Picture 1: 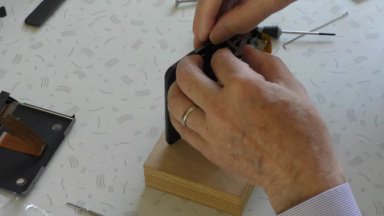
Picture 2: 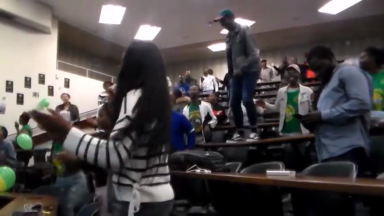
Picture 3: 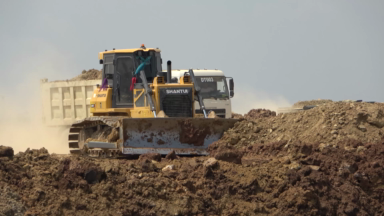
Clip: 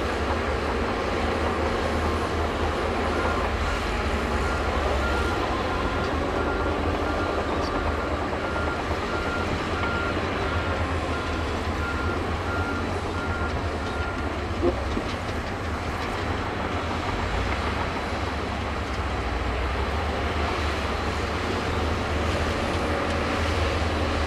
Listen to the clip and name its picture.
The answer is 3